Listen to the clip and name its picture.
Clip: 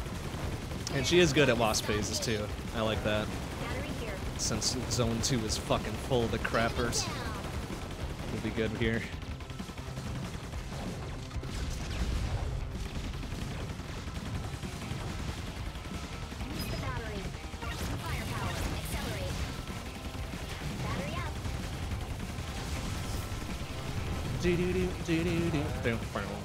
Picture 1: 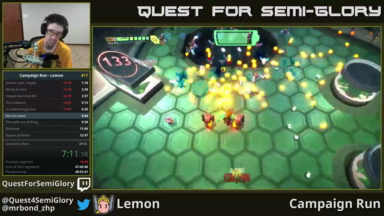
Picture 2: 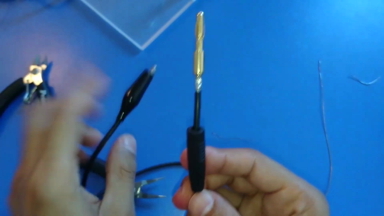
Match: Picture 1